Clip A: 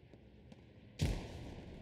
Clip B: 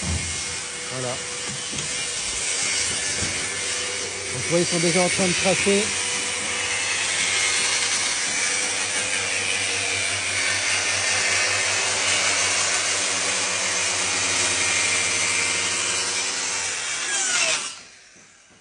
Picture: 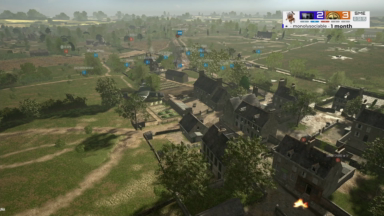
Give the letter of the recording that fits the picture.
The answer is A